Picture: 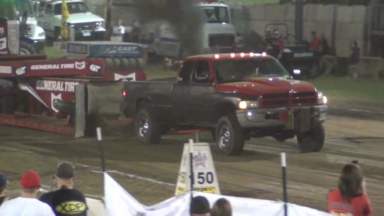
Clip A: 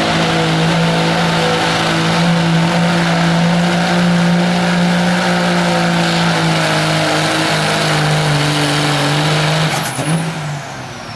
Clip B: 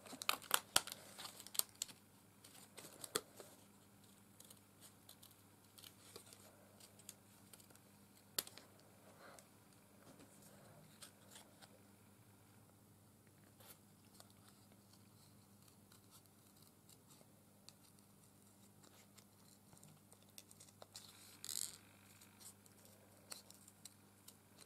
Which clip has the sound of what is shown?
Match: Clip A